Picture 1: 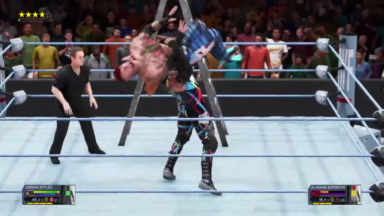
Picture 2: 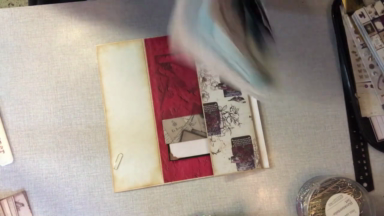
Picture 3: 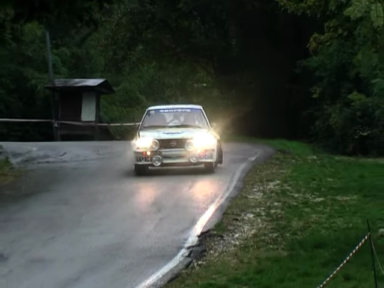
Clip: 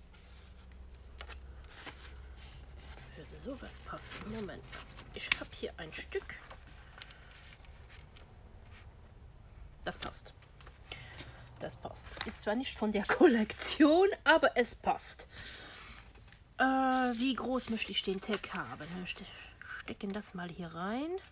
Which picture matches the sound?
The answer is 2